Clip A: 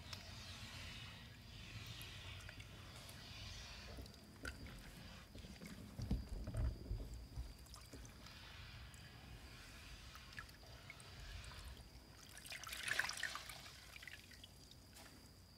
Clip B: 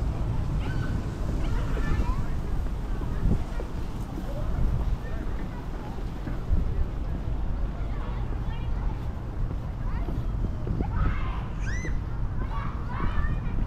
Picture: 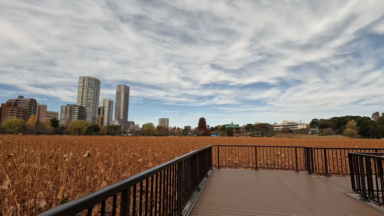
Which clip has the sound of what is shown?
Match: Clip B